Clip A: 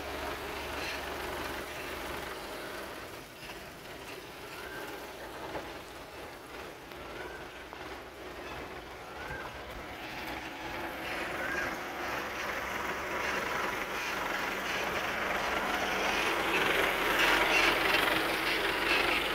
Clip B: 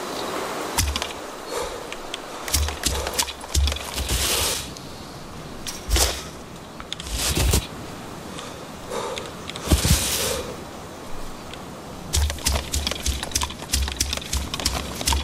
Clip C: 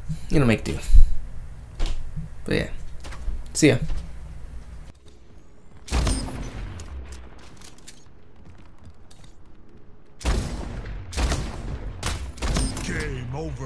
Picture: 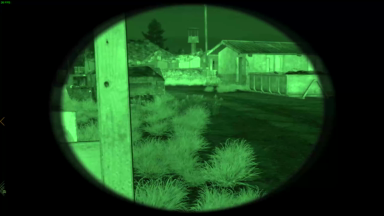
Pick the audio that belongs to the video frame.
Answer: B